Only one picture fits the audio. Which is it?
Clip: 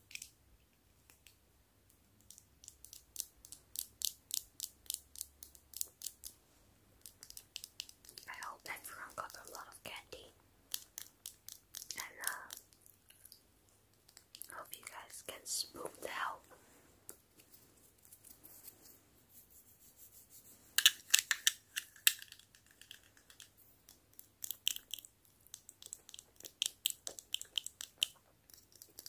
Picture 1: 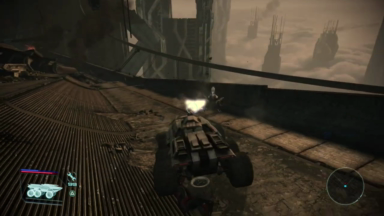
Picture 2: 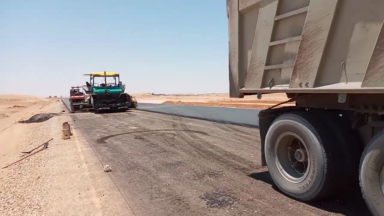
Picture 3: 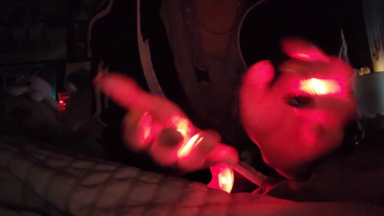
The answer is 3